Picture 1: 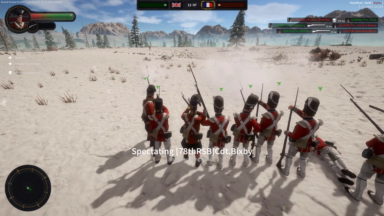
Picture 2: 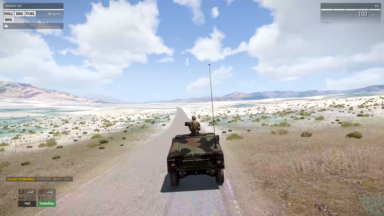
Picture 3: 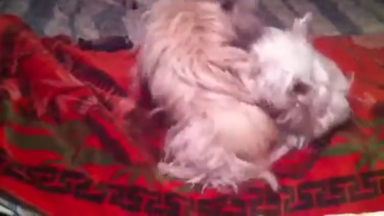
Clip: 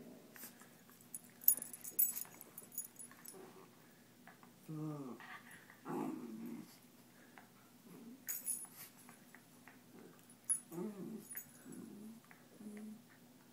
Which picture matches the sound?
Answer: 3